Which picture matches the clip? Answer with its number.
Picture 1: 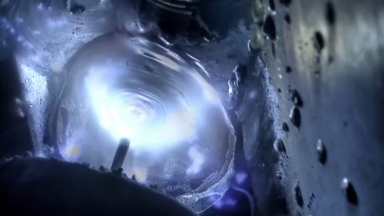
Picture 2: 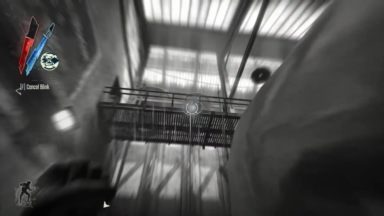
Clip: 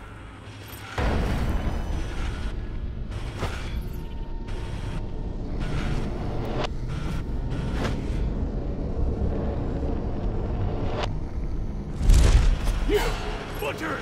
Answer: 2